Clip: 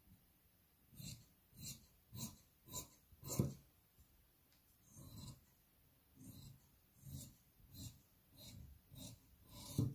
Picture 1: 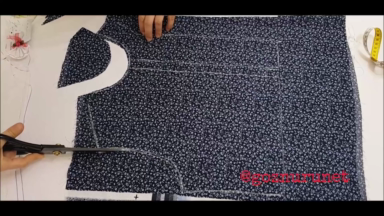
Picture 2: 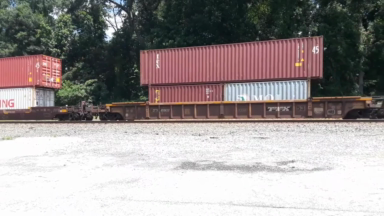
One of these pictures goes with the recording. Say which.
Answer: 1